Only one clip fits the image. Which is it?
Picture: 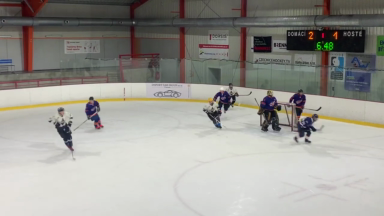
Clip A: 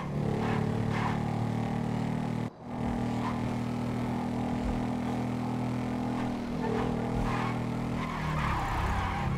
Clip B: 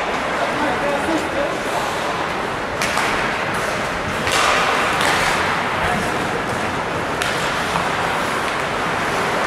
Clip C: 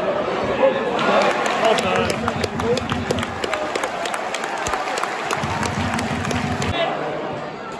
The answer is B